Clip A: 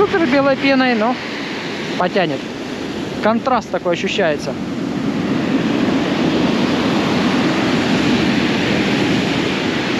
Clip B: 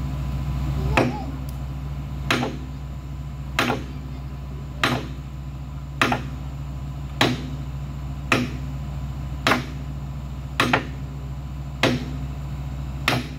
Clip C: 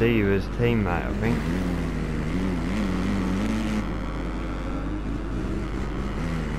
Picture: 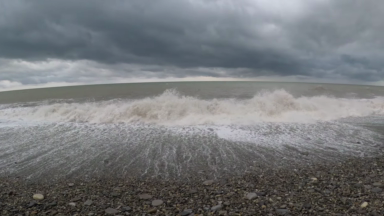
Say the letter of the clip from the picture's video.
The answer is A